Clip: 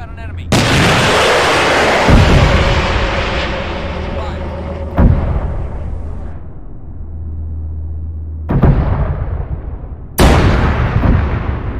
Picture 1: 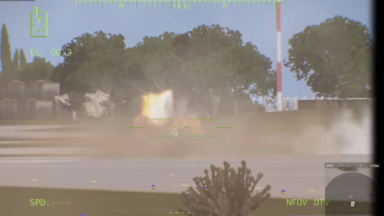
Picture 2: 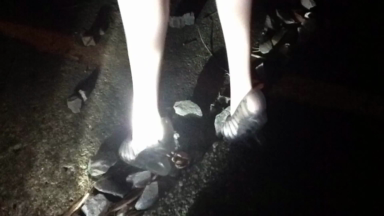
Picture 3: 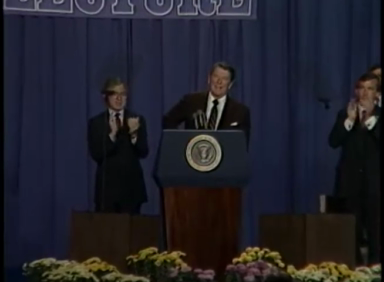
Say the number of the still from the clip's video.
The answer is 1